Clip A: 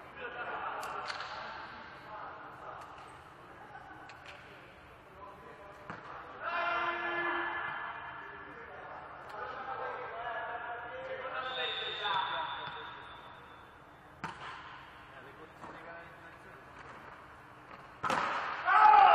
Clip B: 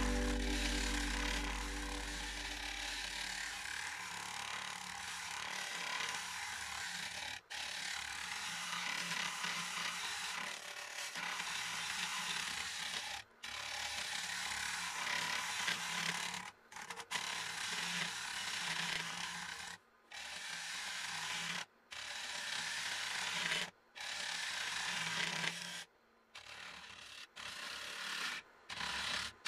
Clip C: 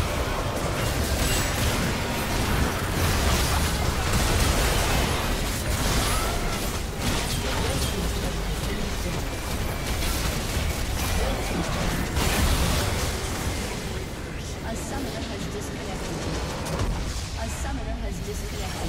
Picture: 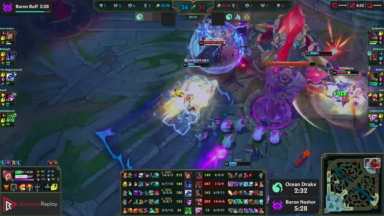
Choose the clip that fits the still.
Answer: C